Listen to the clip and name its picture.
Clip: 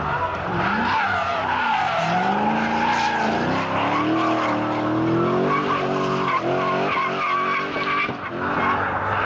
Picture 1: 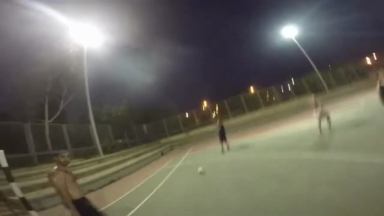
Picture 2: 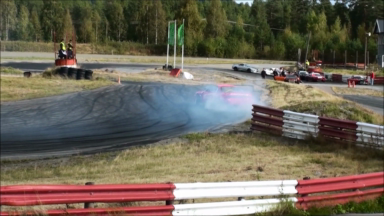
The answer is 2